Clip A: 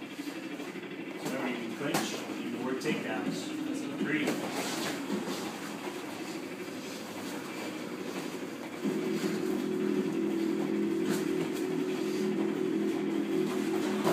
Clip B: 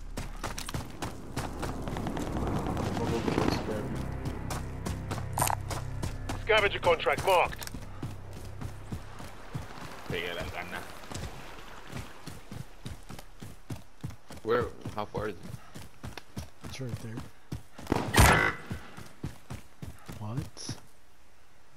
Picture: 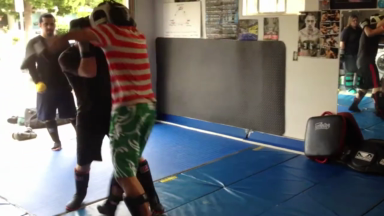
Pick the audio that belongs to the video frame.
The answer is A